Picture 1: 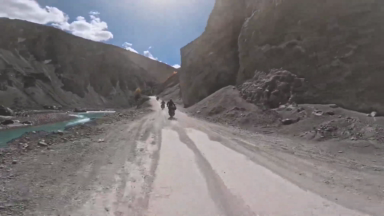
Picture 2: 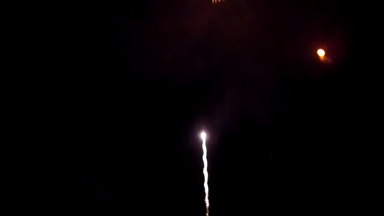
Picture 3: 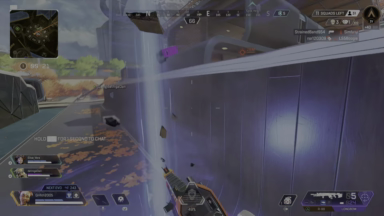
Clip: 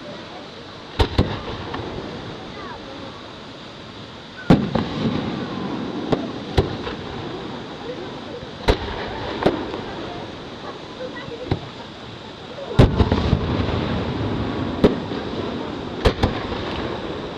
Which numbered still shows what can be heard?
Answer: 2